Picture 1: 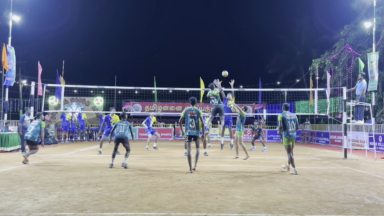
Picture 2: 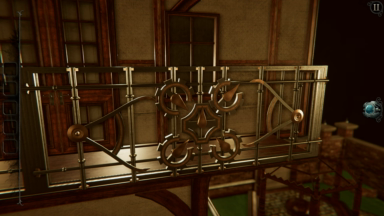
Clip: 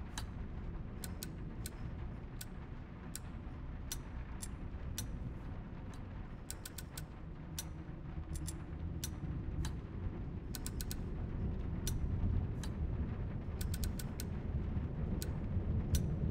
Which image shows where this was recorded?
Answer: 2